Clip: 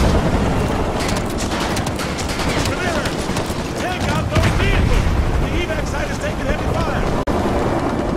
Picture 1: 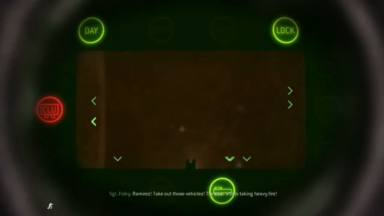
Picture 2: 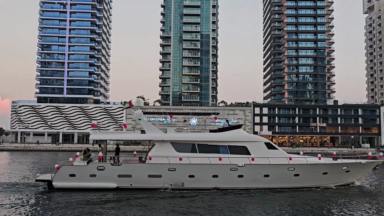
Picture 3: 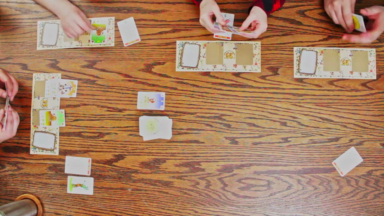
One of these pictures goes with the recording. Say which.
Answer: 1